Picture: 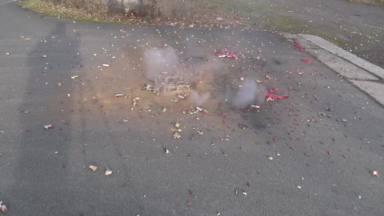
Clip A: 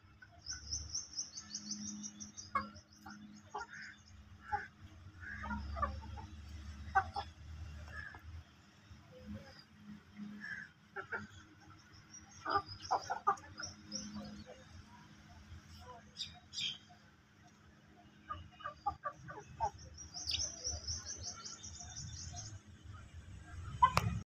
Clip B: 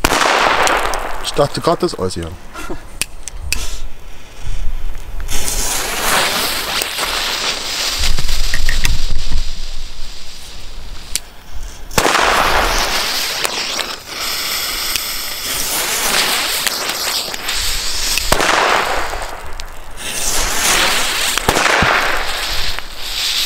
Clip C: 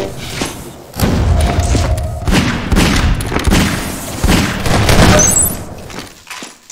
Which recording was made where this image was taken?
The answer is B